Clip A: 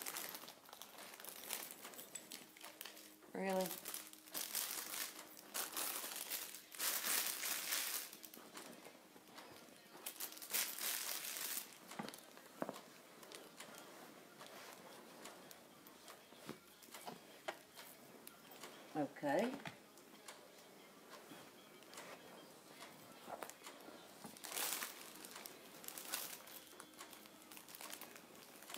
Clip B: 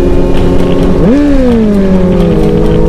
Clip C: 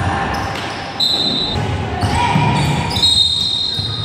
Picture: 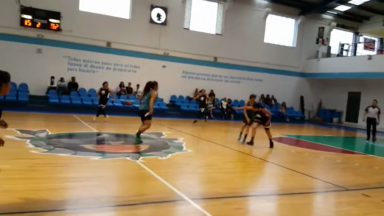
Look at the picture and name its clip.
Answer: C